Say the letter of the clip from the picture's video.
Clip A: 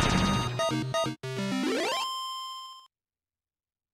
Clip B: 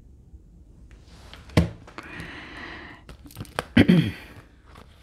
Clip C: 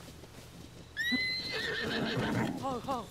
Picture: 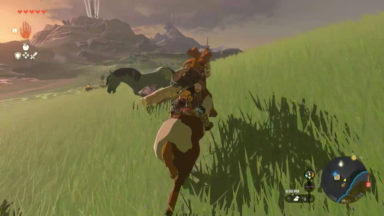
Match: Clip C